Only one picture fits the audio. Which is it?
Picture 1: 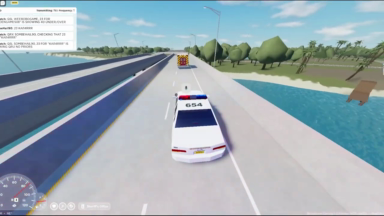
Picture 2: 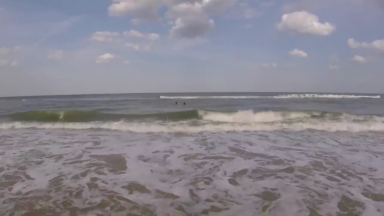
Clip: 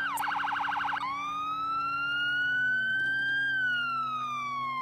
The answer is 1